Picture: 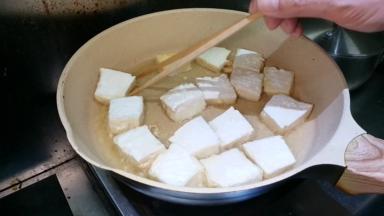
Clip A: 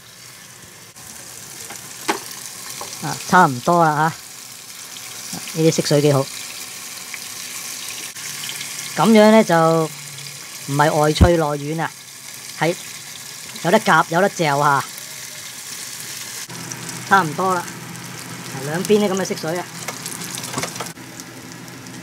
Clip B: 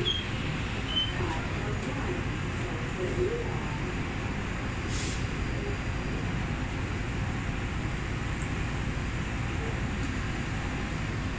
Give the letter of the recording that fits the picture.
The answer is A